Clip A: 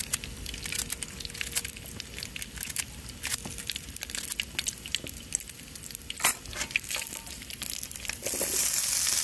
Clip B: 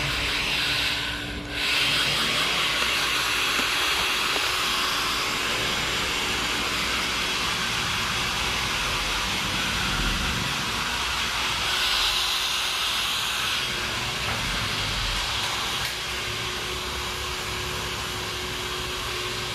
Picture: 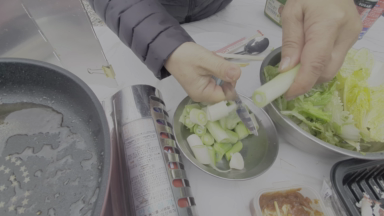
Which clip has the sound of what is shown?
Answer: A